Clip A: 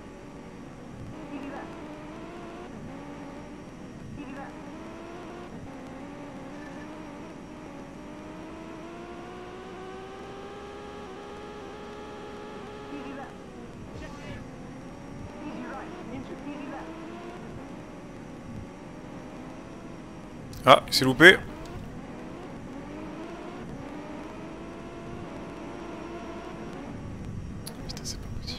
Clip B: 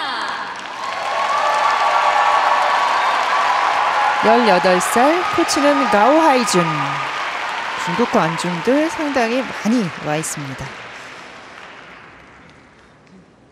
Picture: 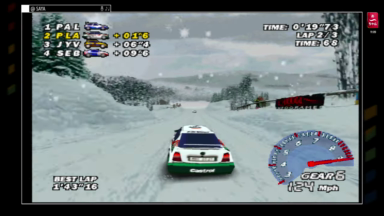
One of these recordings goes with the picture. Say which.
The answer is A